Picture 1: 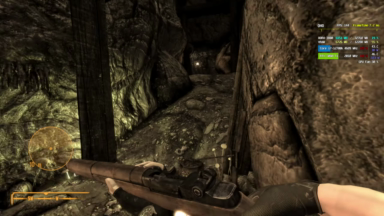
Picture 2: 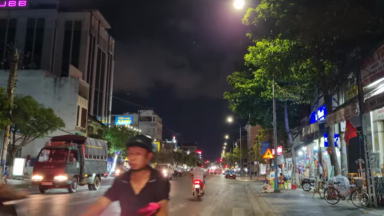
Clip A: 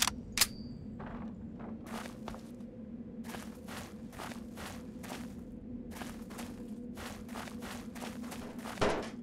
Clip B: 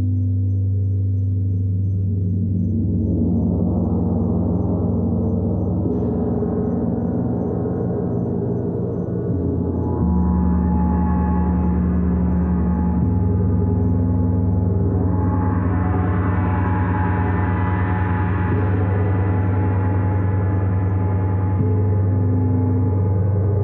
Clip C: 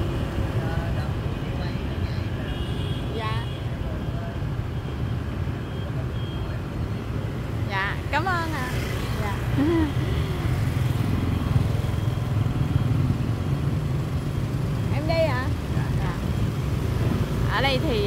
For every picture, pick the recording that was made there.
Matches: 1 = A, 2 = C